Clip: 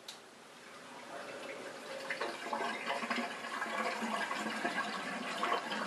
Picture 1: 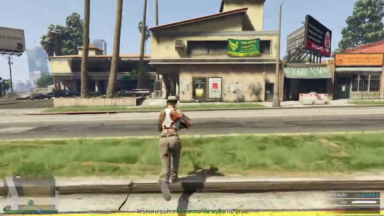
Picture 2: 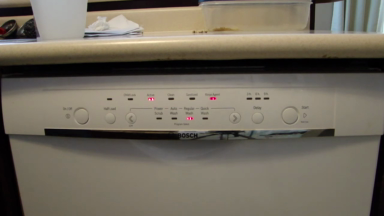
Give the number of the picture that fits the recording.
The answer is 2